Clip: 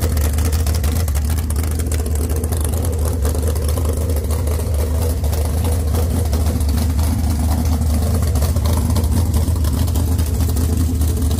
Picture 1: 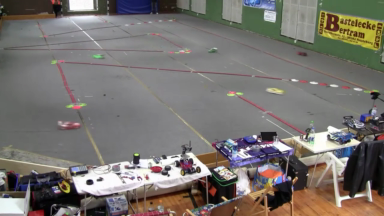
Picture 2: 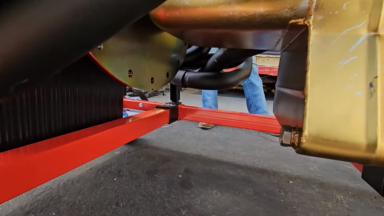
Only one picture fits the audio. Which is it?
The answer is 2